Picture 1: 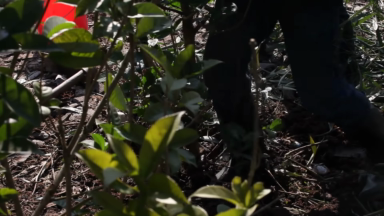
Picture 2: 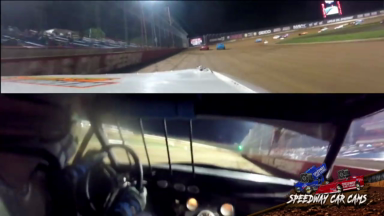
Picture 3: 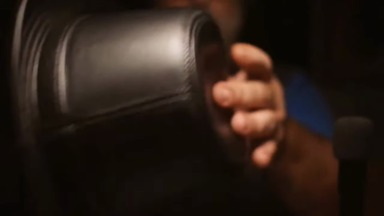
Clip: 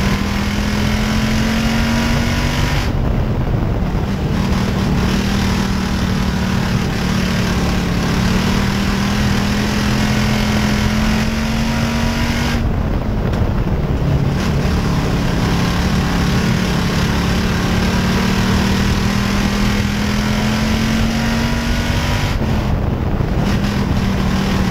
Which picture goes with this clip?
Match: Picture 2